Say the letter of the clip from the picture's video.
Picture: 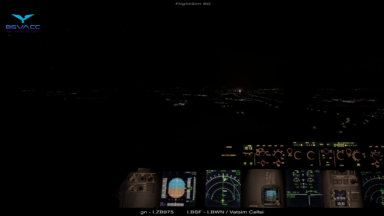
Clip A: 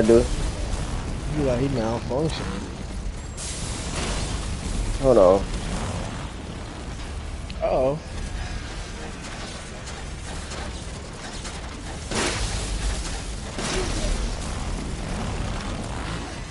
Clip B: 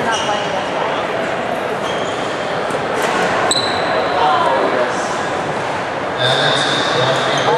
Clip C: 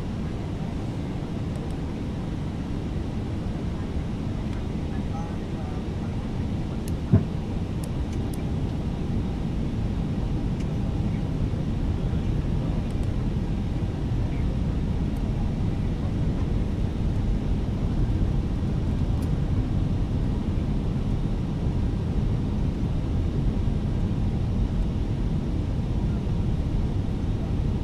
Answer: C